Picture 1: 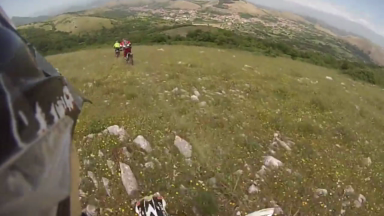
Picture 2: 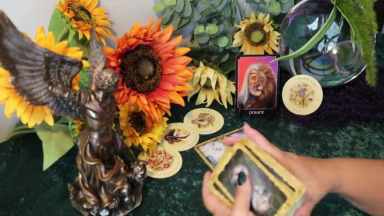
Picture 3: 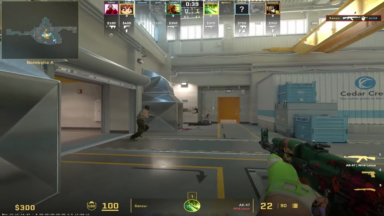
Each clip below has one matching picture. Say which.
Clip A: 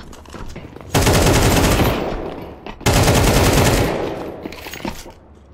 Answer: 3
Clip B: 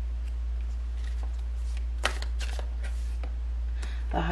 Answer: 2